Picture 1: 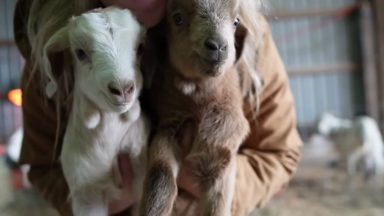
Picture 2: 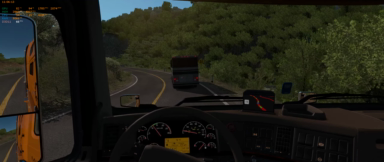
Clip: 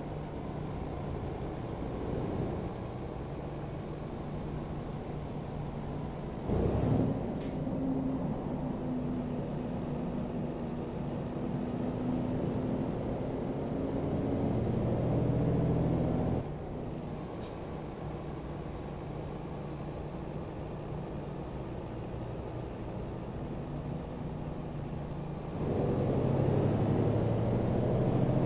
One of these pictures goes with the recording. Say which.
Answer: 2